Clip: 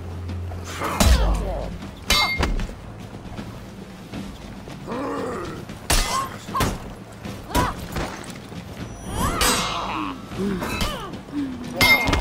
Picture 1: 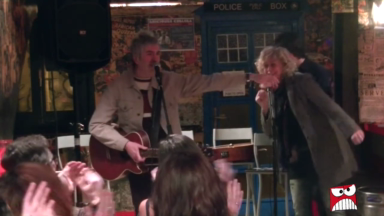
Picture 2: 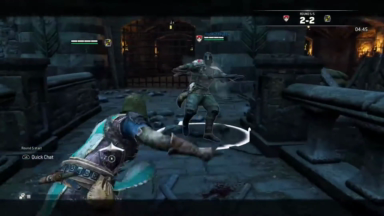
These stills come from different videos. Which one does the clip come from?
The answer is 2